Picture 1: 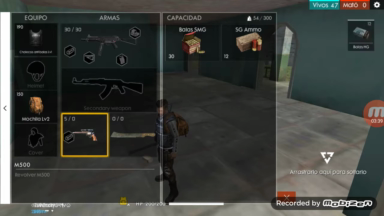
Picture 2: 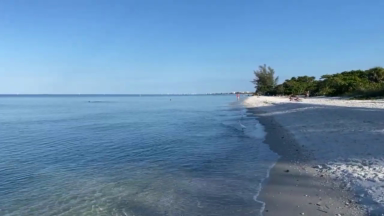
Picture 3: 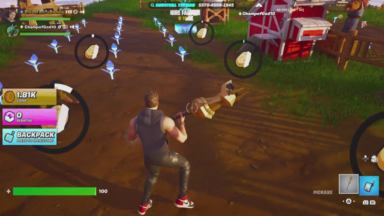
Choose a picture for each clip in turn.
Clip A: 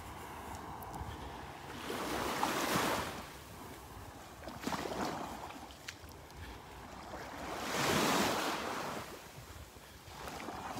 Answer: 2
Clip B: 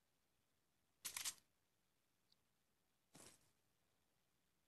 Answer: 1